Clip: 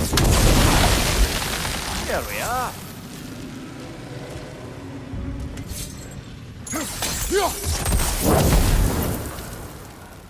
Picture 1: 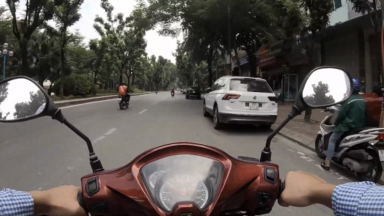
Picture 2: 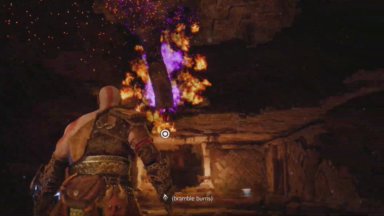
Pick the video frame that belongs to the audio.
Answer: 2